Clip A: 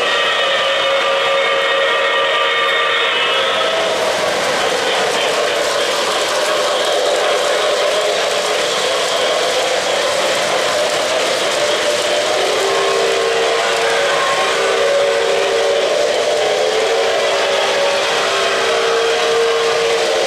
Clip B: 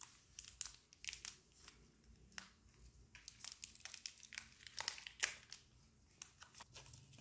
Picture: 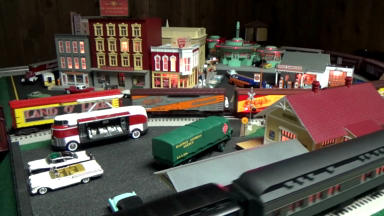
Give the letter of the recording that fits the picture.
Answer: A